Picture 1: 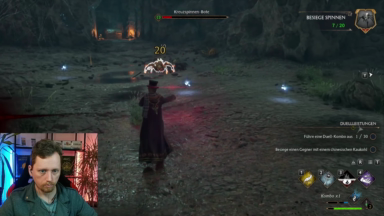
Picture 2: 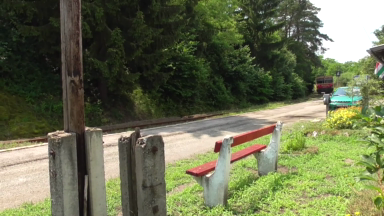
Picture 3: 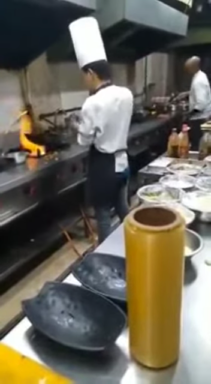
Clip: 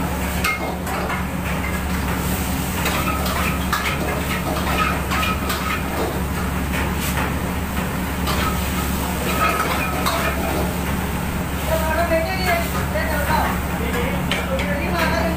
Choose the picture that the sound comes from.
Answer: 3